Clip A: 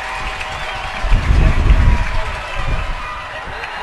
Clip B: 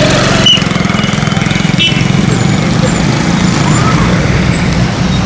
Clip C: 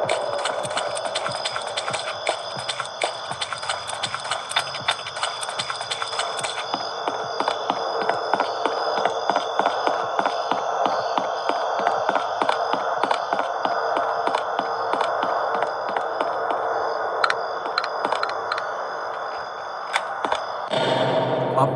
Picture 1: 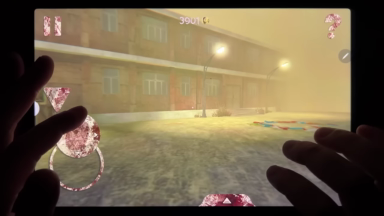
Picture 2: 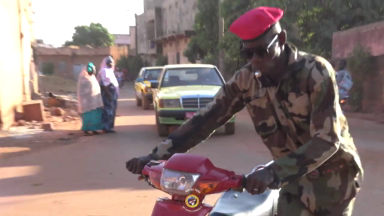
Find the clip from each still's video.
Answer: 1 C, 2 B